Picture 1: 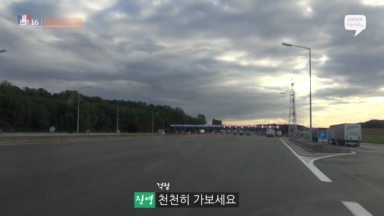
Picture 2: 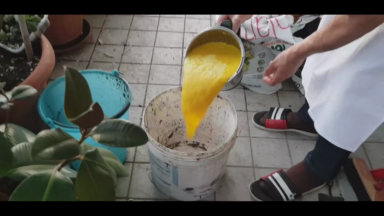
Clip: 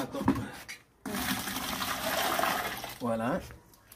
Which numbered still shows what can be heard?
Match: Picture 2